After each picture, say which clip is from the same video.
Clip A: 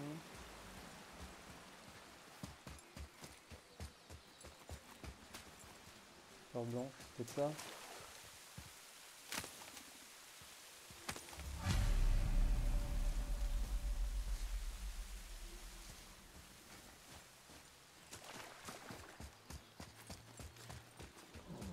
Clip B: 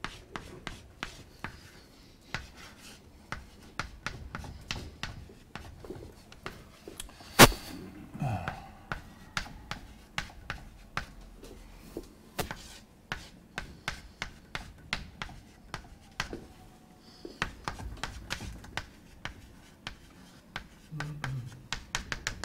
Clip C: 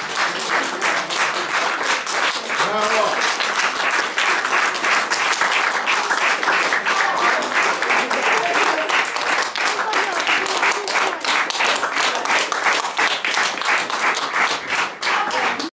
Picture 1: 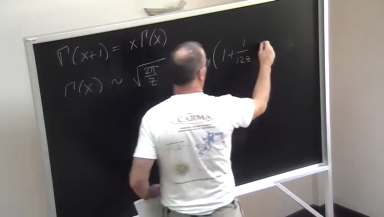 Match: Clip B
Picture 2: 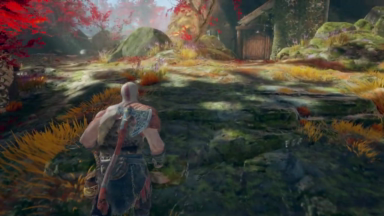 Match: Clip A